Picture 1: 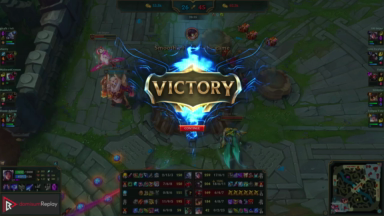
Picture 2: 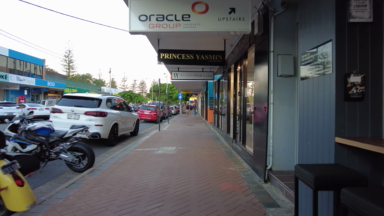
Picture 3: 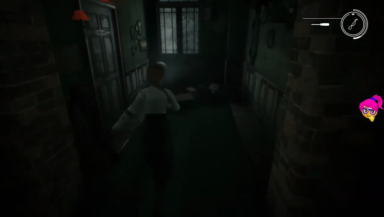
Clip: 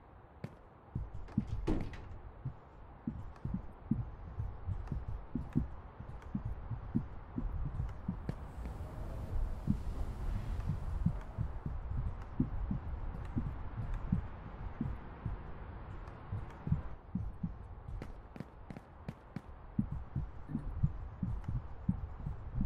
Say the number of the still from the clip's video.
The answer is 3